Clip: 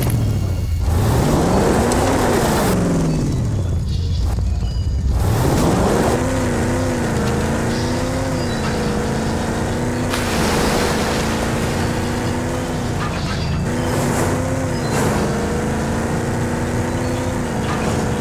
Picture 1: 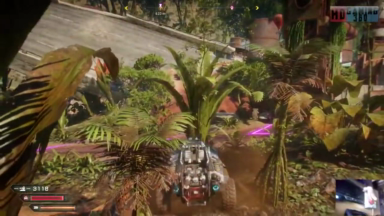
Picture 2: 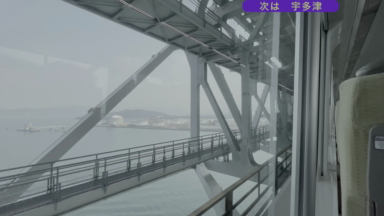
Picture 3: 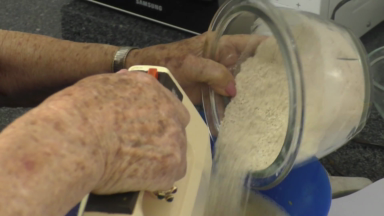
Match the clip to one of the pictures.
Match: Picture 1